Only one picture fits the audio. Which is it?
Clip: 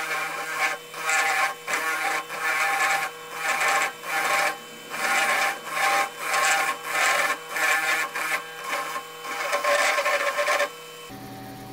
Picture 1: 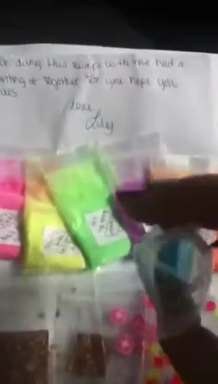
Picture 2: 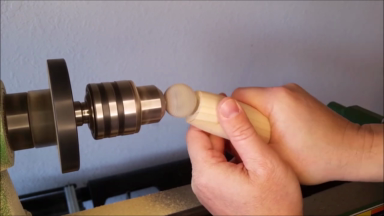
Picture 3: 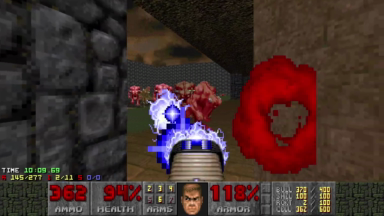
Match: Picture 2